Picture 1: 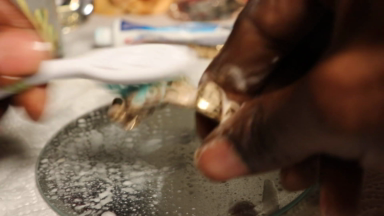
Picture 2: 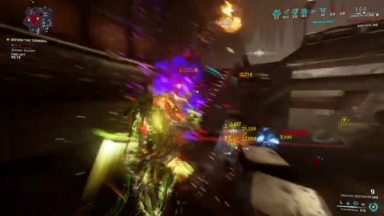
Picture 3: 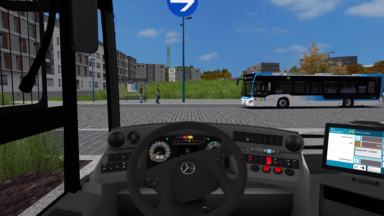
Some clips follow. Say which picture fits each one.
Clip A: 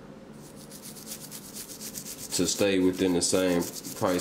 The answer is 1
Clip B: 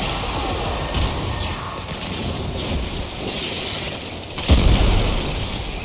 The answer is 2